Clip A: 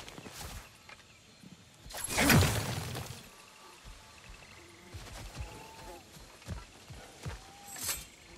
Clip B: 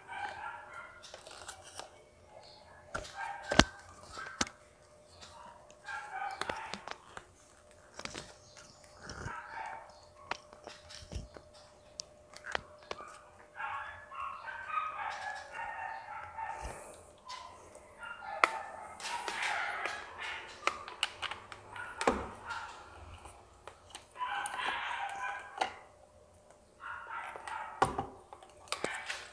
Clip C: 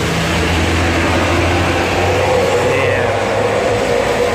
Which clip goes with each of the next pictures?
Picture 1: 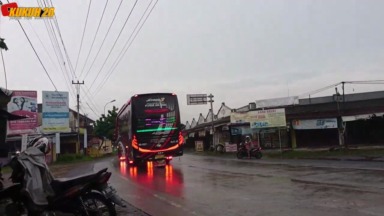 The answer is C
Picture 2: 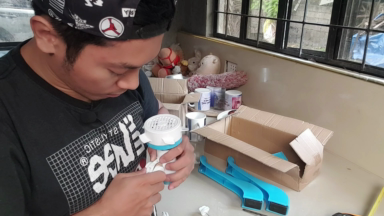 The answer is B